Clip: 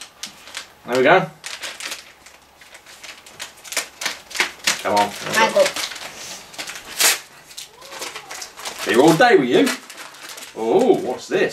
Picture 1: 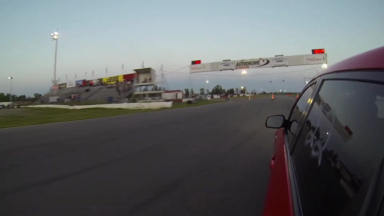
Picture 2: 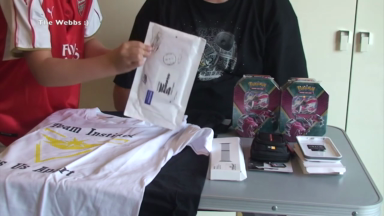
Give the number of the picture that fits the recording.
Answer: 2